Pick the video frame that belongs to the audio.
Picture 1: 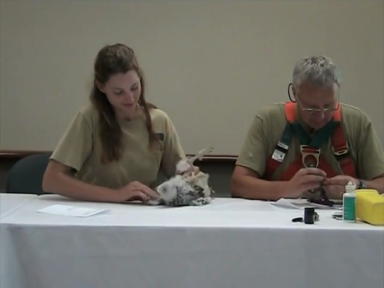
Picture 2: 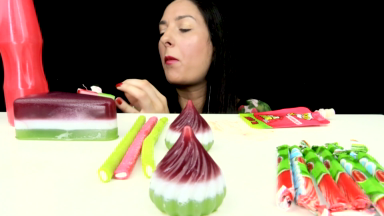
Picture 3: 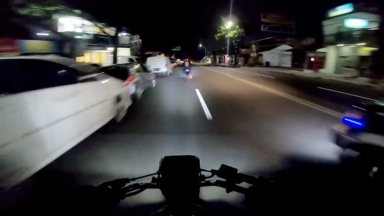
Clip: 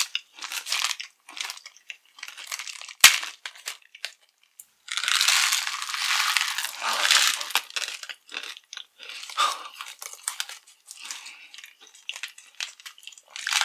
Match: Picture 2